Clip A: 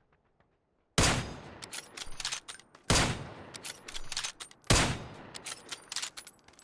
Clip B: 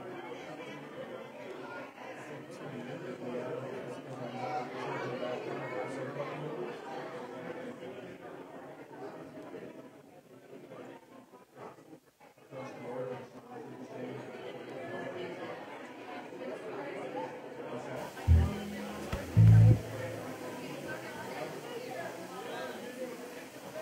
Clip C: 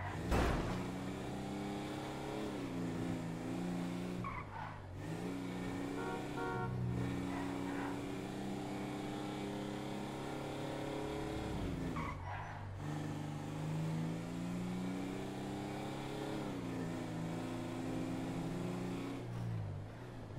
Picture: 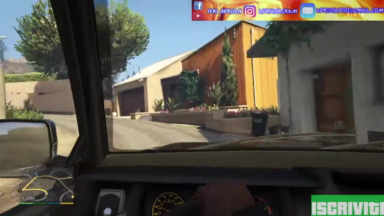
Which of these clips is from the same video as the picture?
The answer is C